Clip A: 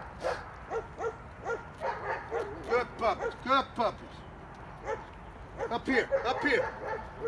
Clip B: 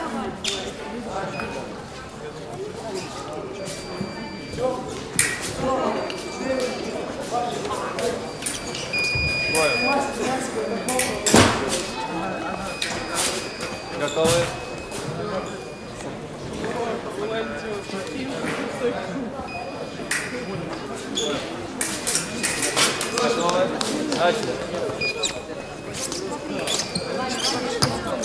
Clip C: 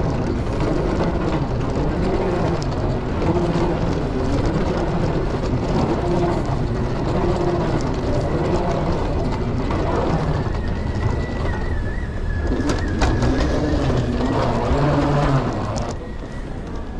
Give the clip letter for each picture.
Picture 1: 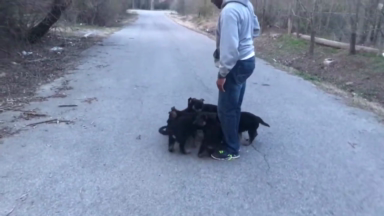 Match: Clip A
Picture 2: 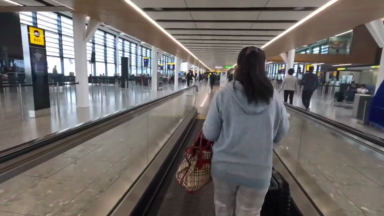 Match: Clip C